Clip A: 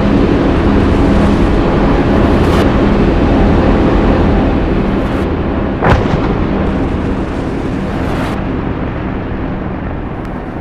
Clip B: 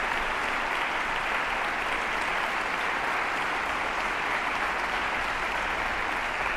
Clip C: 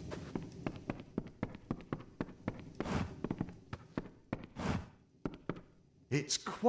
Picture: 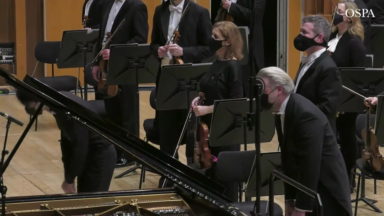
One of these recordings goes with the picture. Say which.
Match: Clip B